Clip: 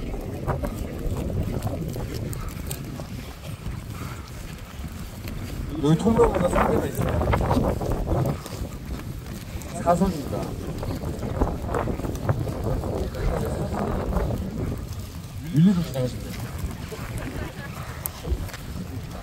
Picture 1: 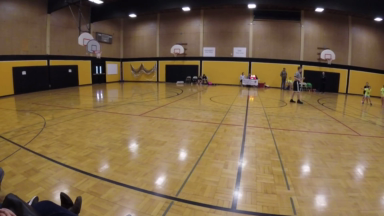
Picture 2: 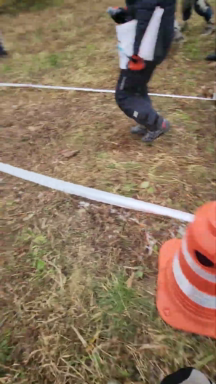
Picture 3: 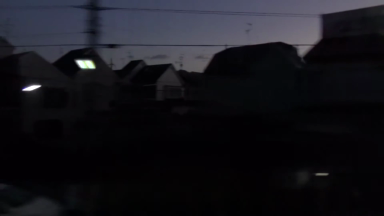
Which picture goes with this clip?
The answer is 2